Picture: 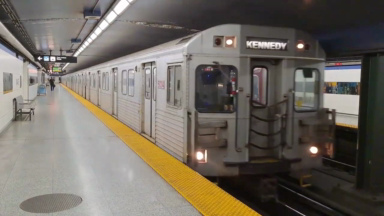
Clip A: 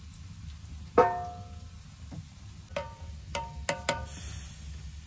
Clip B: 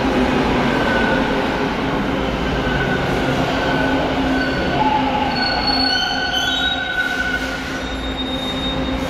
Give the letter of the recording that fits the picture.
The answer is B